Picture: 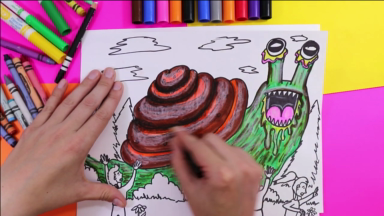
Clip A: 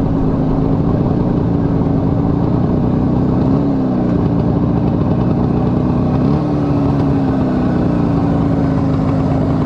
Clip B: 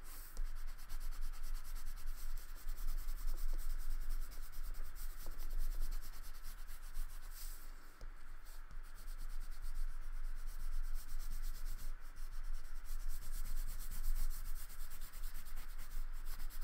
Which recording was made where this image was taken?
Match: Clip B